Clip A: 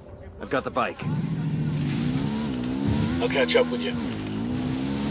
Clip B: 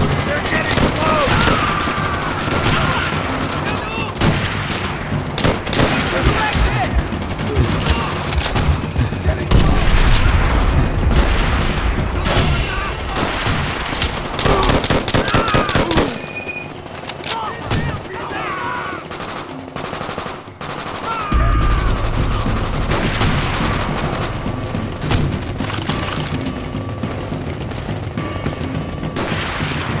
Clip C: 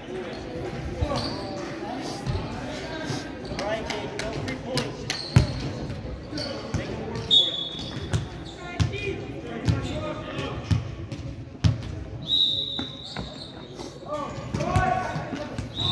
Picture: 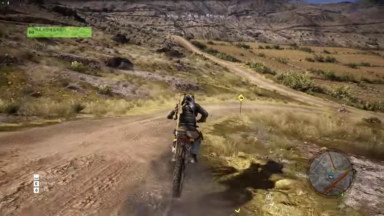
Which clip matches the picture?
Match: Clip A